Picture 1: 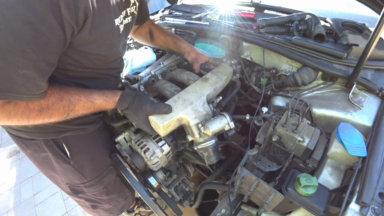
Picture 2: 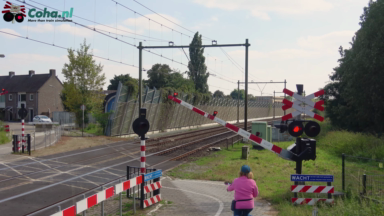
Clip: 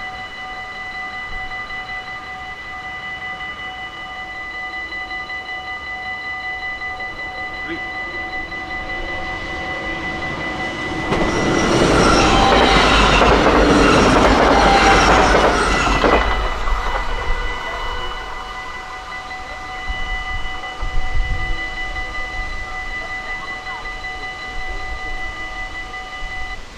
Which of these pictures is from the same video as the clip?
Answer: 2